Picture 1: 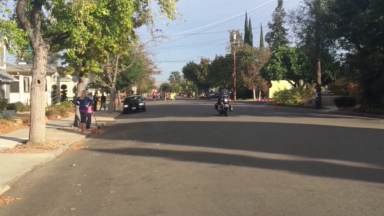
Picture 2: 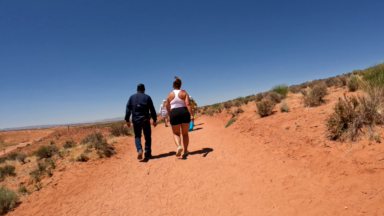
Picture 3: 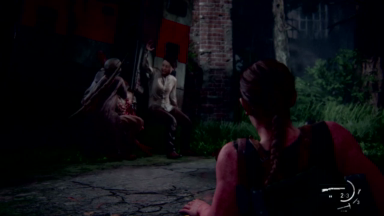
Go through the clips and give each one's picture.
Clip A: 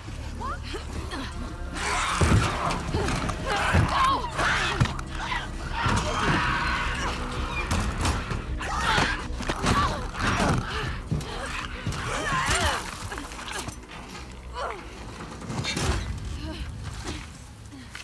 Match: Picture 3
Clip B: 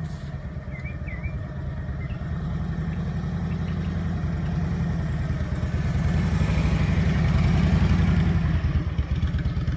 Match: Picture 1